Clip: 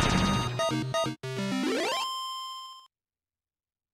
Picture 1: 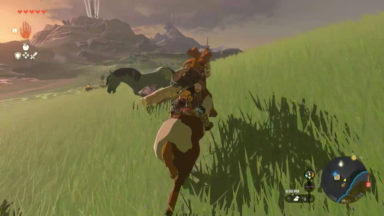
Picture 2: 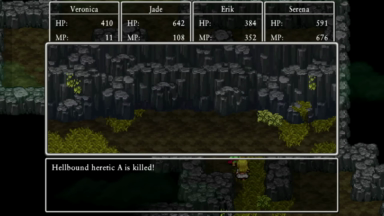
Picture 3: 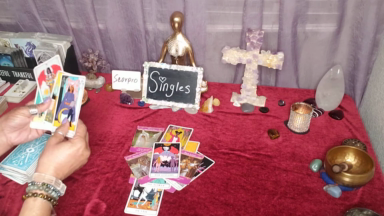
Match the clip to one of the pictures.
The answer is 2